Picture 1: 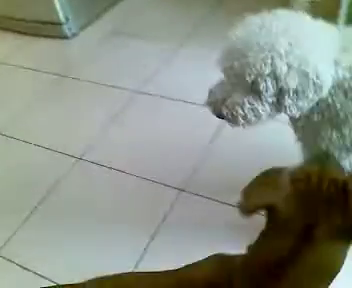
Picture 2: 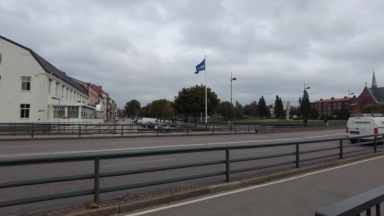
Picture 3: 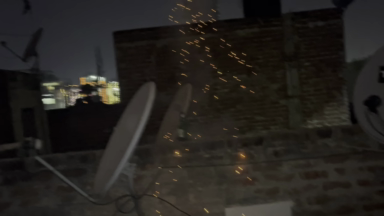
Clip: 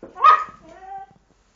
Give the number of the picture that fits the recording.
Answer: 1